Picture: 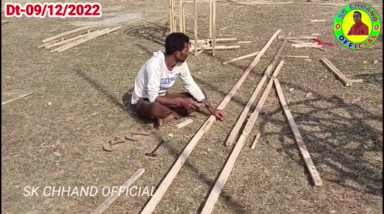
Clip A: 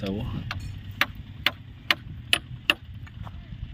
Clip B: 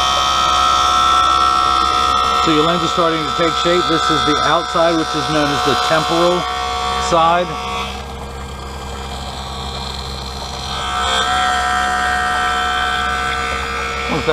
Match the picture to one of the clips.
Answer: A